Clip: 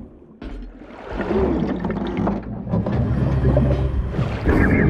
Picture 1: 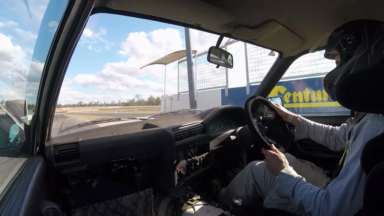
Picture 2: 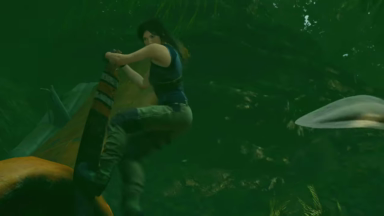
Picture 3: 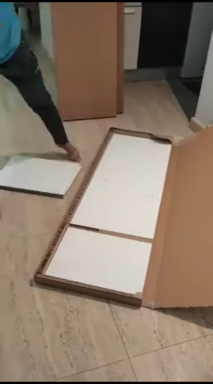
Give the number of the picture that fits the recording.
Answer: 2